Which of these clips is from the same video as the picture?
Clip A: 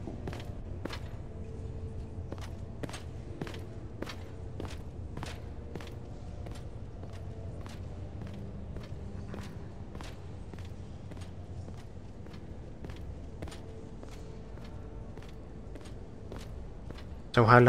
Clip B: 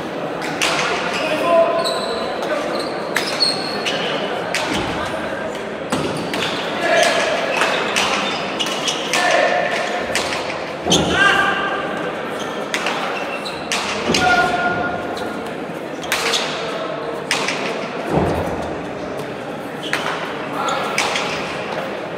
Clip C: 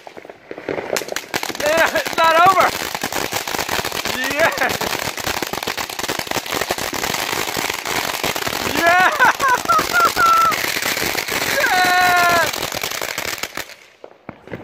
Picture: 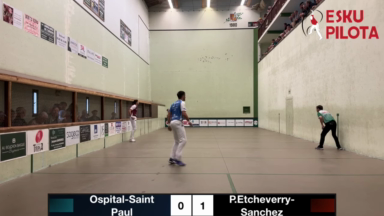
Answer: B